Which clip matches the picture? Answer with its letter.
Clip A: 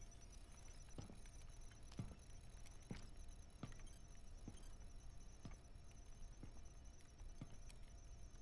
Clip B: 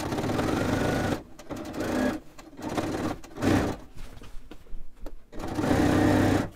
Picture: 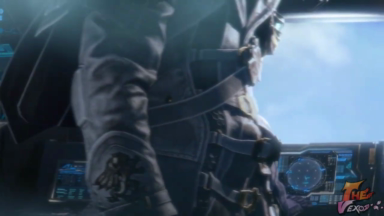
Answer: A